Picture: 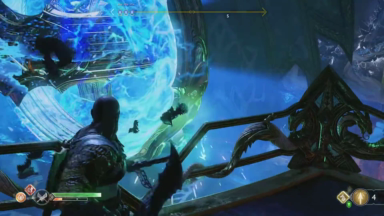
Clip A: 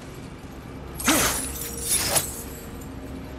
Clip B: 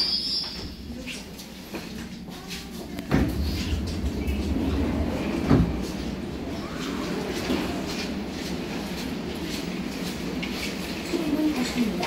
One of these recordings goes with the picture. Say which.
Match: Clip A